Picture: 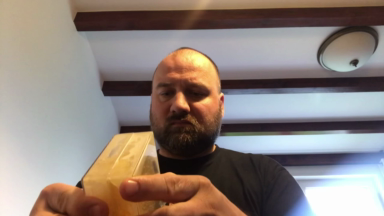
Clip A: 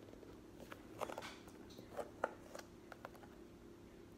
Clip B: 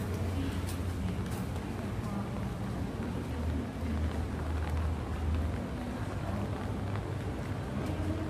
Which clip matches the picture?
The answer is A